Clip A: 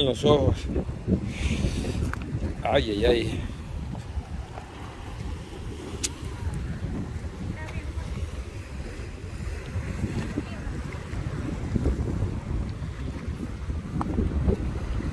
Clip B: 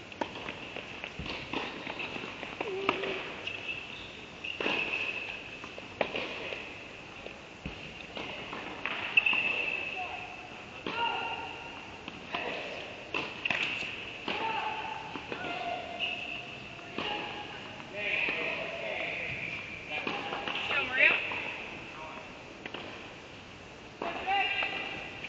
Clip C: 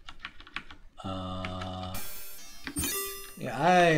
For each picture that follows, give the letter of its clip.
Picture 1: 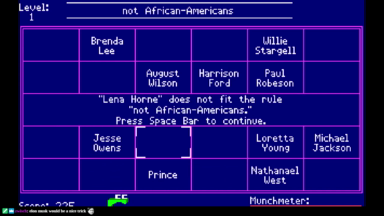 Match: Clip C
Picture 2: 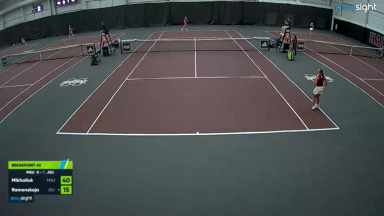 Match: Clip B